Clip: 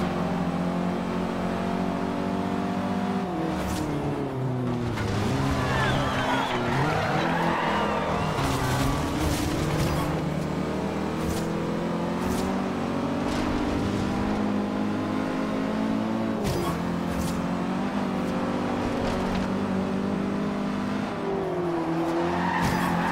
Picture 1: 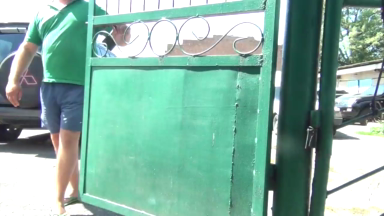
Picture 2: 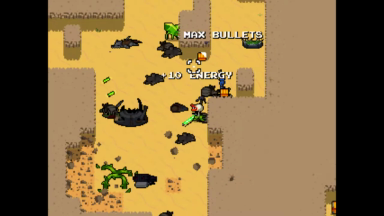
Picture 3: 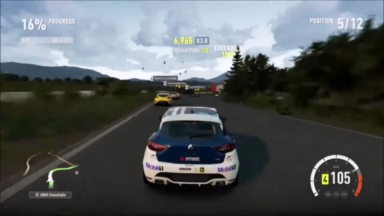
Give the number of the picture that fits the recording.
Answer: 3